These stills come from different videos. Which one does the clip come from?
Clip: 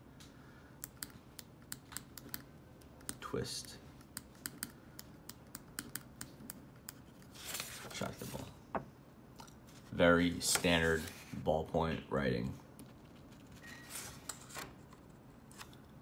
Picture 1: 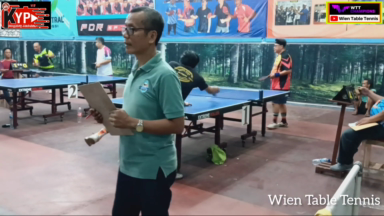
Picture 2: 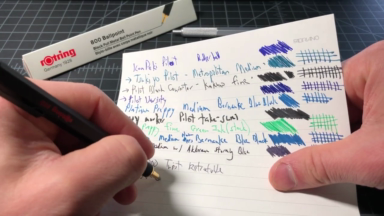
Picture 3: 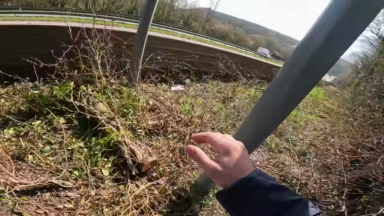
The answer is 2